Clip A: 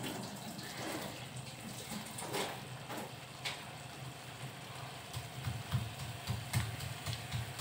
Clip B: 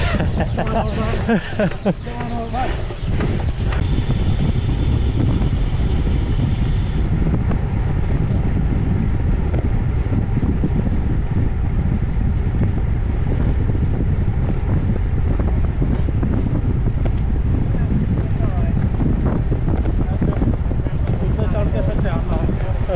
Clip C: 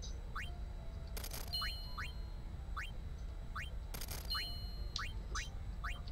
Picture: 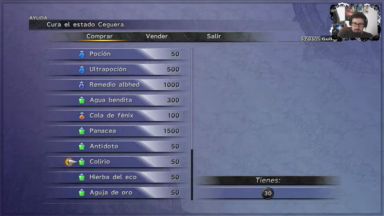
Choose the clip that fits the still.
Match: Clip C